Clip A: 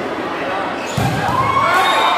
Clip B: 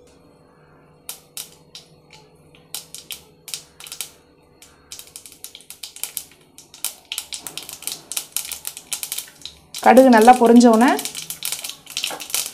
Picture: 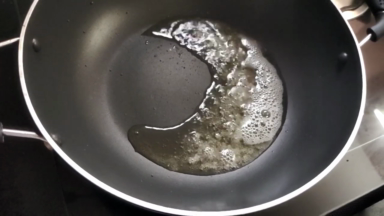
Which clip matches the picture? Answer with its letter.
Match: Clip B